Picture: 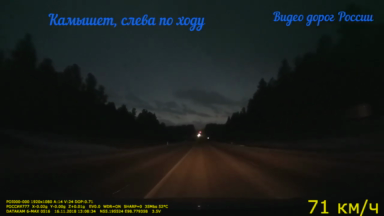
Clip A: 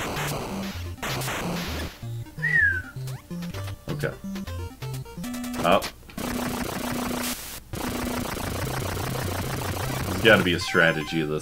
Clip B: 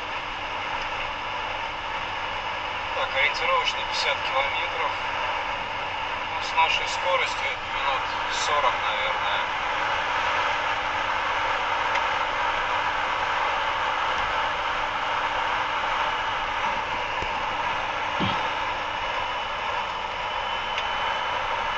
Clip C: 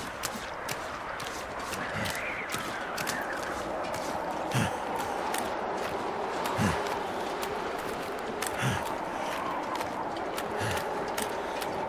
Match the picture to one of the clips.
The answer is B